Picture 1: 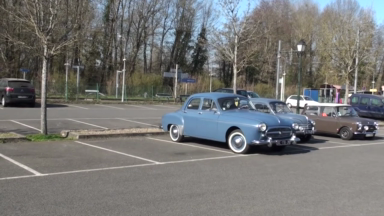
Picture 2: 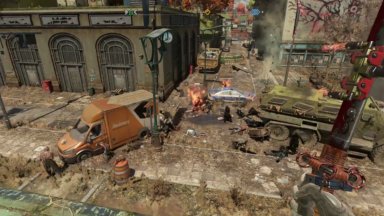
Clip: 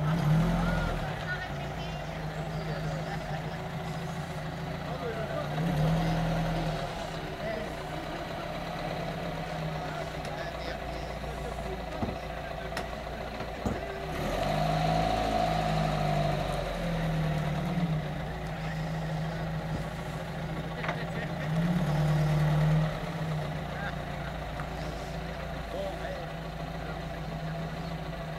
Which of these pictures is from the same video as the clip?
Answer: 1